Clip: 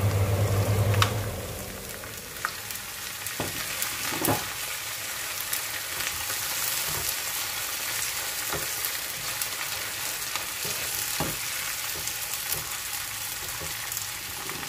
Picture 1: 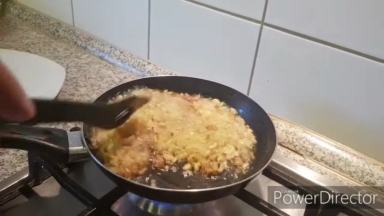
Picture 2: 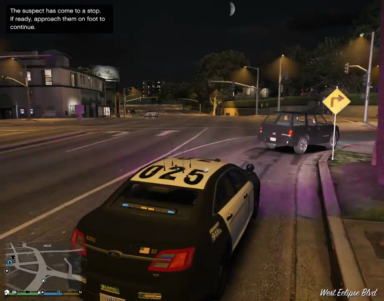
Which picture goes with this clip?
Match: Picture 1